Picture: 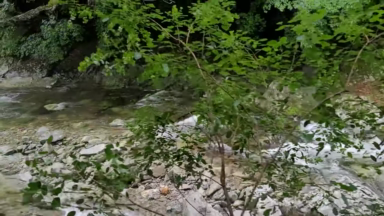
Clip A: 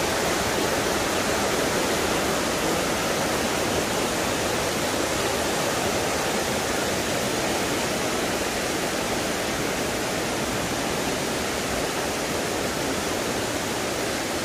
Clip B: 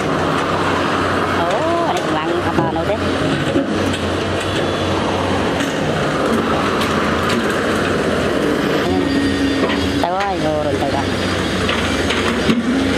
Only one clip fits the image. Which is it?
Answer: A